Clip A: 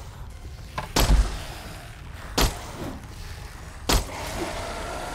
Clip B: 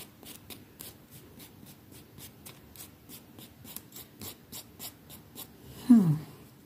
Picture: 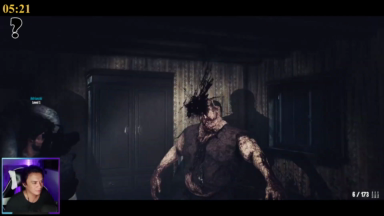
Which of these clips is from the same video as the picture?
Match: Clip A